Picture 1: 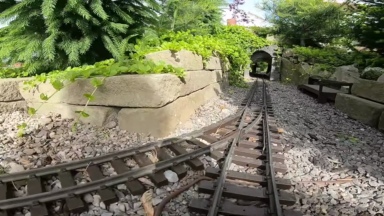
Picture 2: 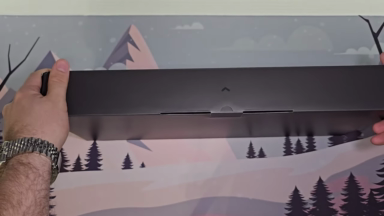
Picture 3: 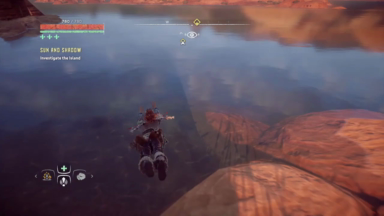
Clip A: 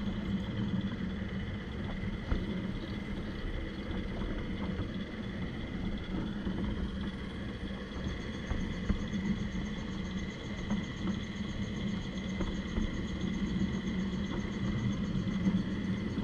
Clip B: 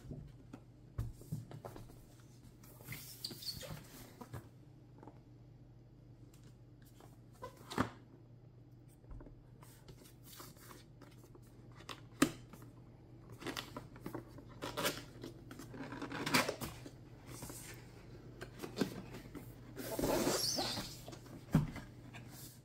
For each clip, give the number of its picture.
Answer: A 1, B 2